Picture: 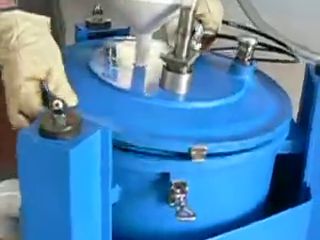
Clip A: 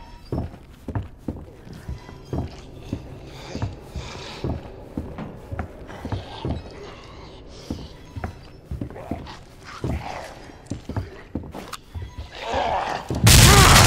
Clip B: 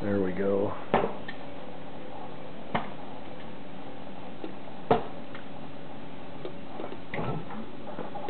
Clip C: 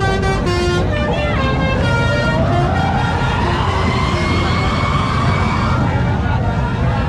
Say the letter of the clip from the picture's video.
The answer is B